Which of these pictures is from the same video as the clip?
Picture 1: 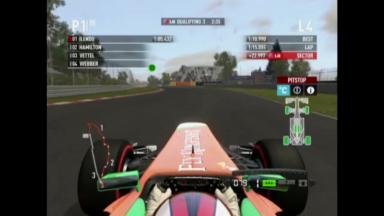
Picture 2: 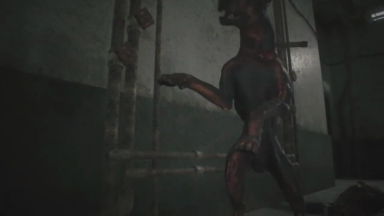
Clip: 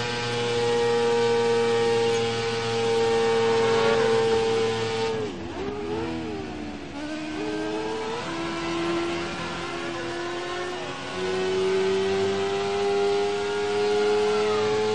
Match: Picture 1